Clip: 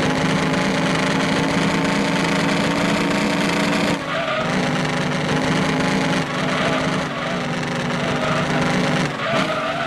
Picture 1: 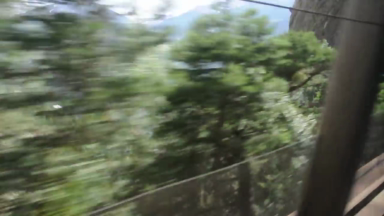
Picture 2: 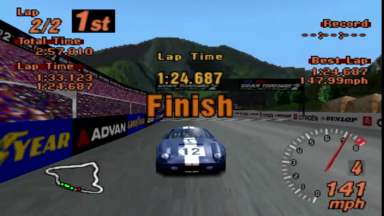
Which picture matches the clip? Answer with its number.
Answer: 2